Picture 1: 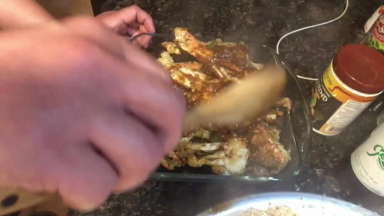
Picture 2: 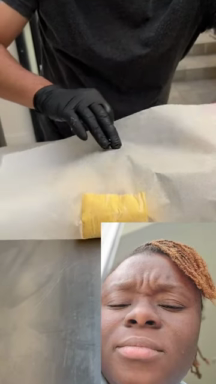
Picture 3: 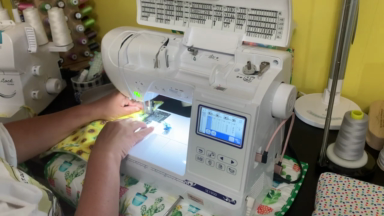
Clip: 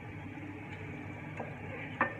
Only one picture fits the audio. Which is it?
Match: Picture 1